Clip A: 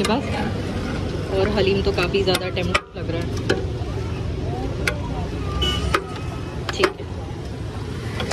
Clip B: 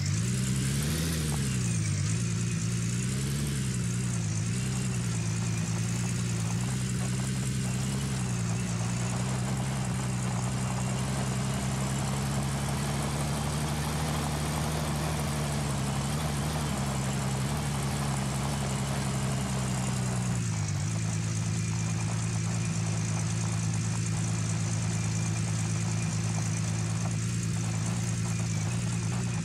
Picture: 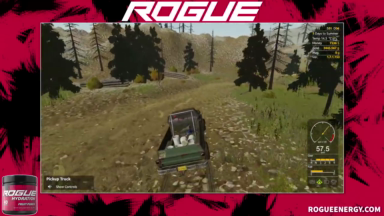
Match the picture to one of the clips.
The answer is B